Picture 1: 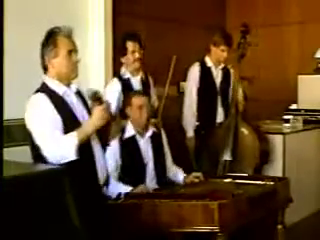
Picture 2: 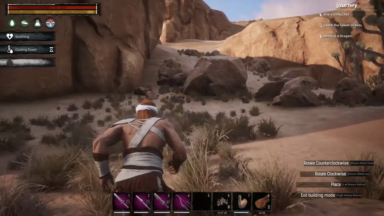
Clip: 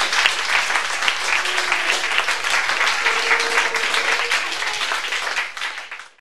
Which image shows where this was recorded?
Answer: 1